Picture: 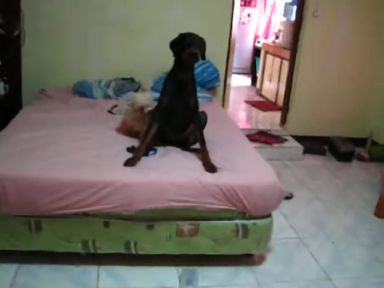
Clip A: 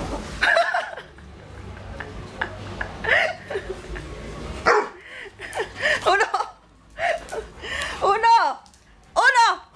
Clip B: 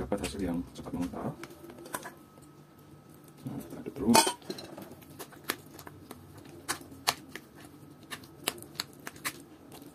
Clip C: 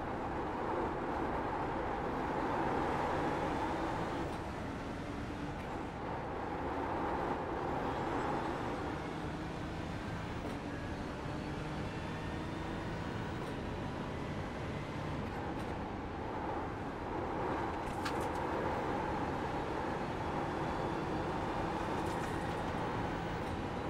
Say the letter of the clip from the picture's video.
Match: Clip A